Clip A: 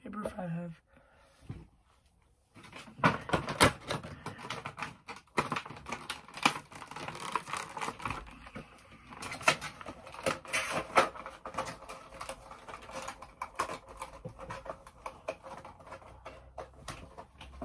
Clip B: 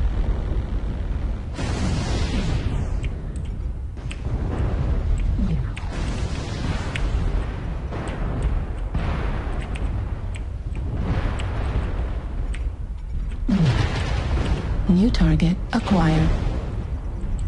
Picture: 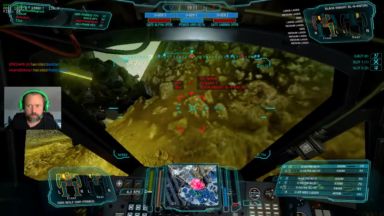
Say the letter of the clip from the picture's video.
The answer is B